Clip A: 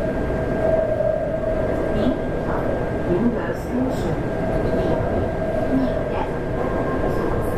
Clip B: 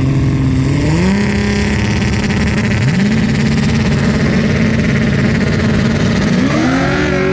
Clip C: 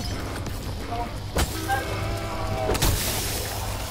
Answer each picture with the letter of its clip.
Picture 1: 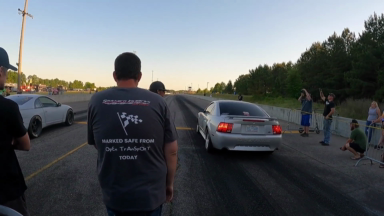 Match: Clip B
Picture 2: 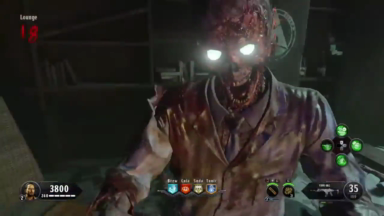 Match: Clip C